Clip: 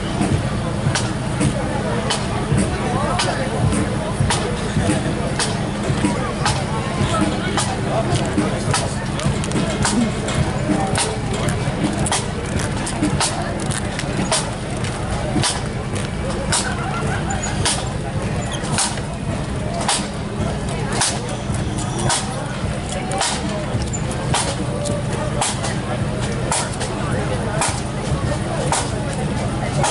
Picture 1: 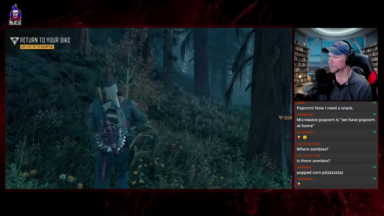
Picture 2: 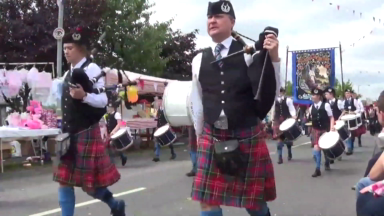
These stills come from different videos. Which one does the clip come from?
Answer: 2